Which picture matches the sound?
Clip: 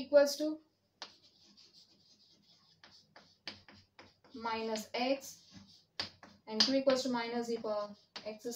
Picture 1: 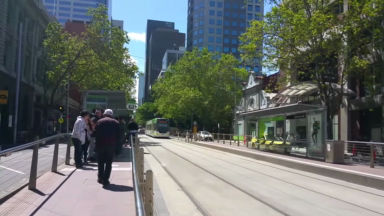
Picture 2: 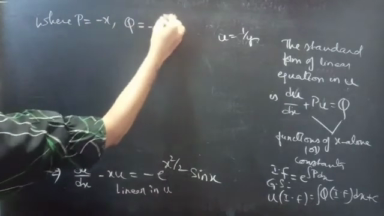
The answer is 2